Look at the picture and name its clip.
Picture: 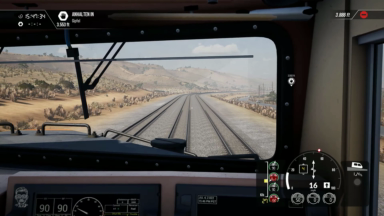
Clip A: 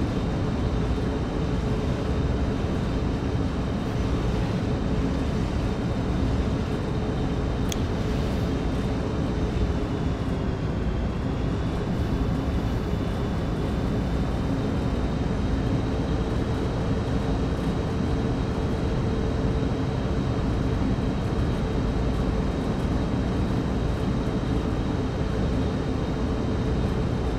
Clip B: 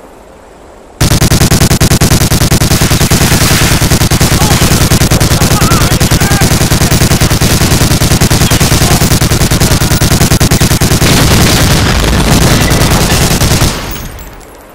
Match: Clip A